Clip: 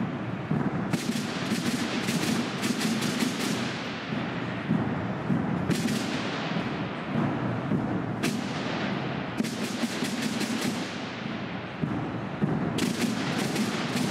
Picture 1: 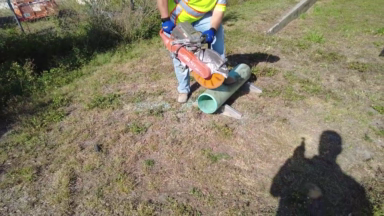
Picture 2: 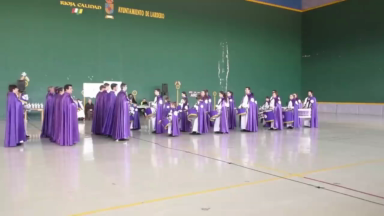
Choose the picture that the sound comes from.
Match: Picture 2